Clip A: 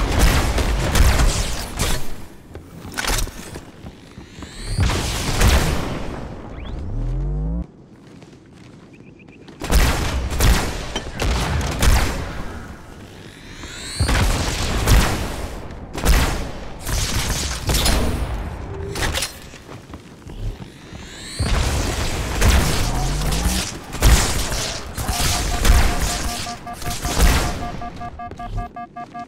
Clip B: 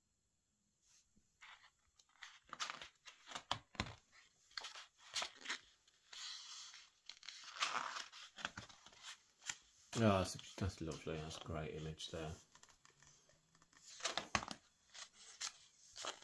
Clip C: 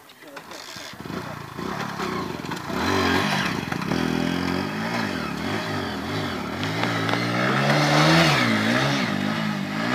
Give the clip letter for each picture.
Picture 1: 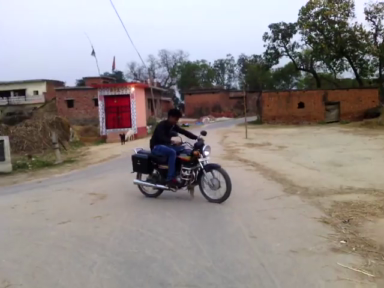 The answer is C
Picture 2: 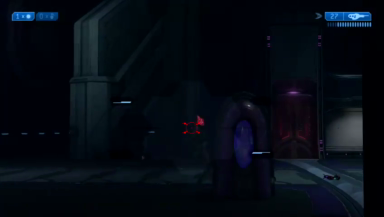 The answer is A